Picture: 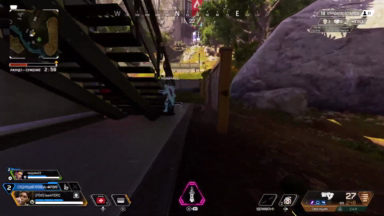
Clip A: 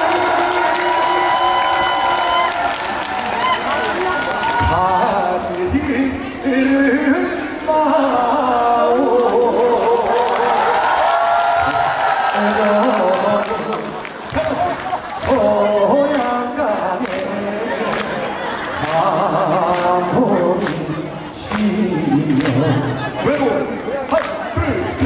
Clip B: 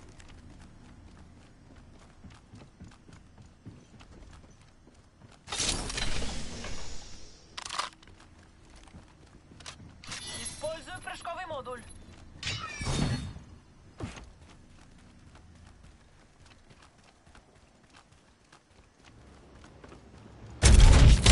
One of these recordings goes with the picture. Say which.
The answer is B